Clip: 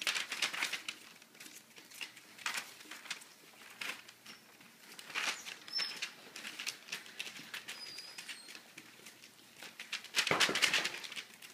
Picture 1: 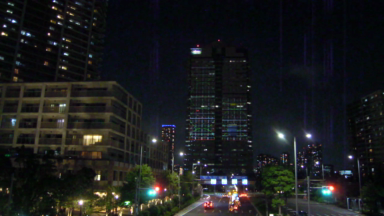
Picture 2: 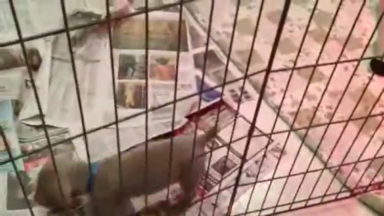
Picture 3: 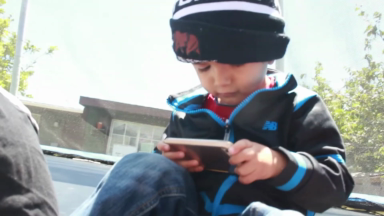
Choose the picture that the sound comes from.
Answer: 2